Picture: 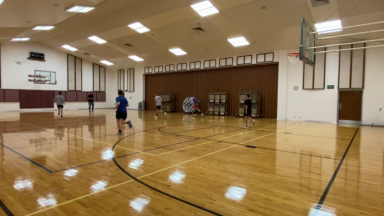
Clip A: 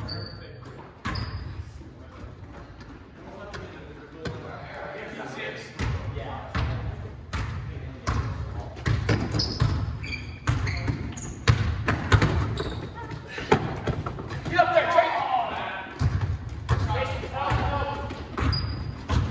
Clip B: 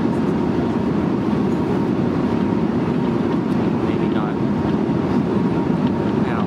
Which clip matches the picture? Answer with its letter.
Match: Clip A